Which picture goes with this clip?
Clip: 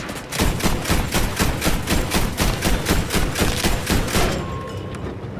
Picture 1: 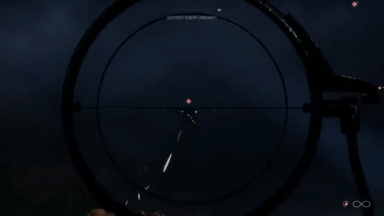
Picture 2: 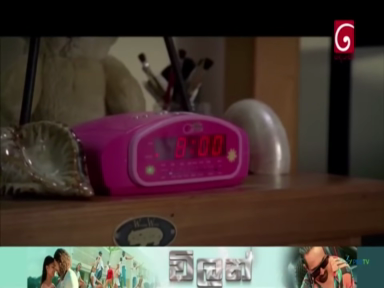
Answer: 1